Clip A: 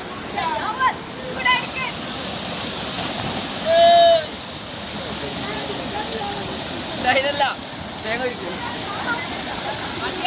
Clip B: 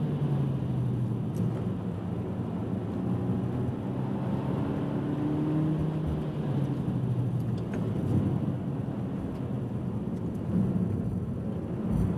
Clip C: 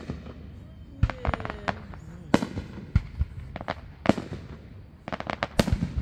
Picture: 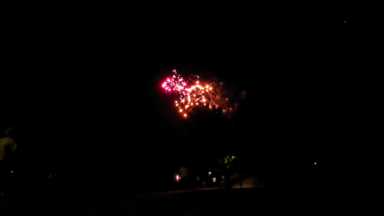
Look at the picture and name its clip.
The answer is C